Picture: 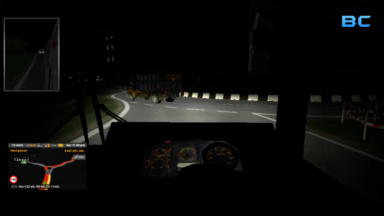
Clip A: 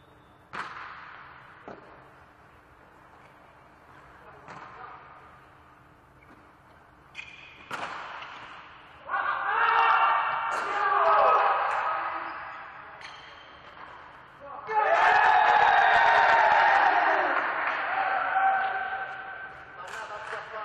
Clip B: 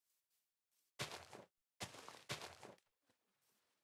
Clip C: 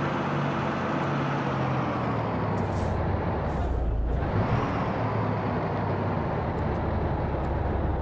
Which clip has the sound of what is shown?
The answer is C